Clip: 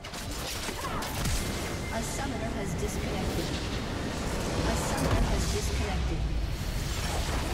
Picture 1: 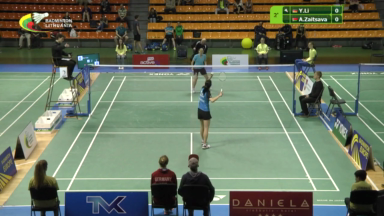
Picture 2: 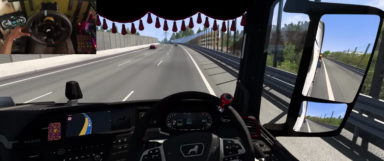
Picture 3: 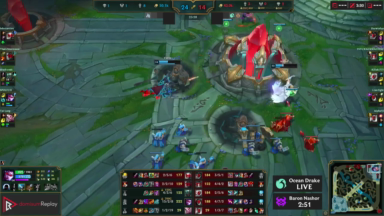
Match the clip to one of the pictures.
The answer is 3